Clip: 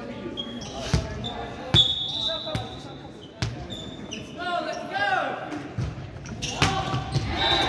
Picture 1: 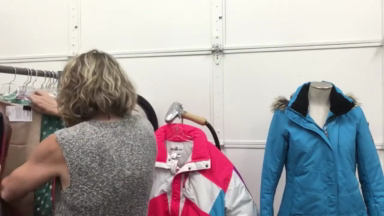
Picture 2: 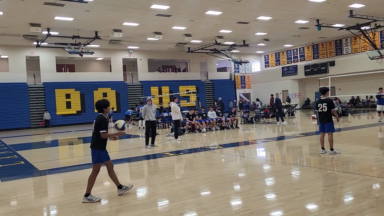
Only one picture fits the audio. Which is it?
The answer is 2